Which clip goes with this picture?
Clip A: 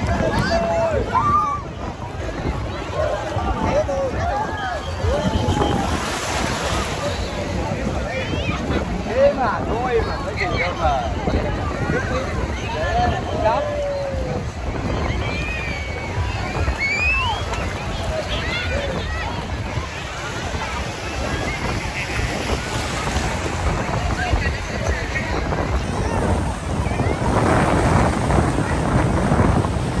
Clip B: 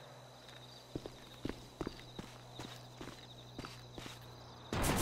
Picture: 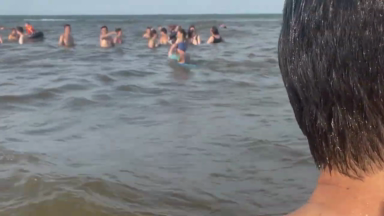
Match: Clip A